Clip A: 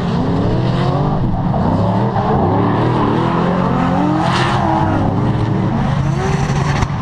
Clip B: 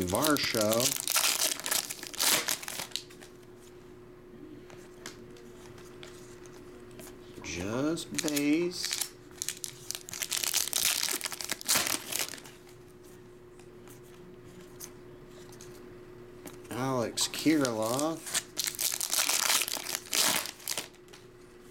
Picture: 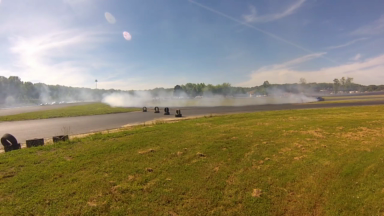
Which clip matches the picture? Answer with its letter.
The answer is A